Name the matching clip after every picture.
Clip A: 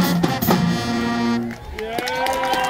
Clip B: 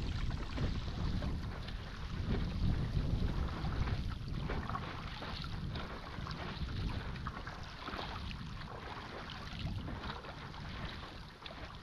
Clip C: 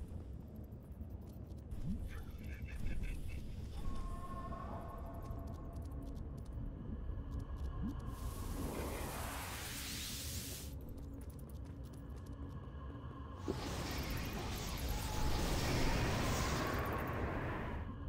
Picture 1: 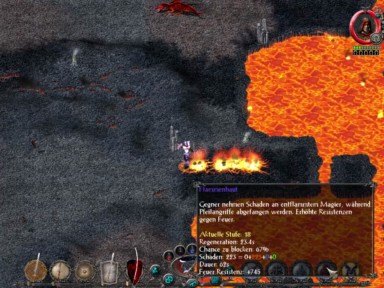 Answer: C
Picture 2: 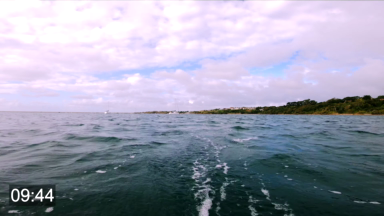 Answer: B